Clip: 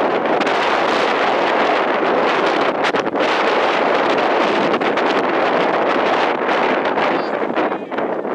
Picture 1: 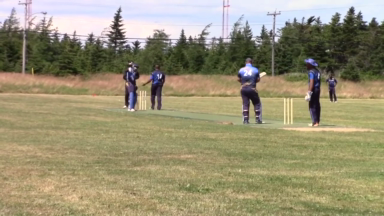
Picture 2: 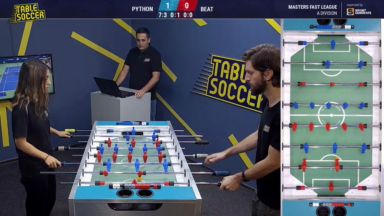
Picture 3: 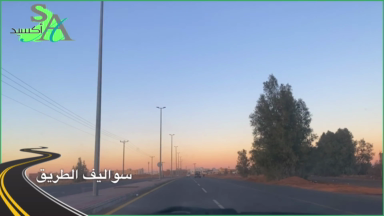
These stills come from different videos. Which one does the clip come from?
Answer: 1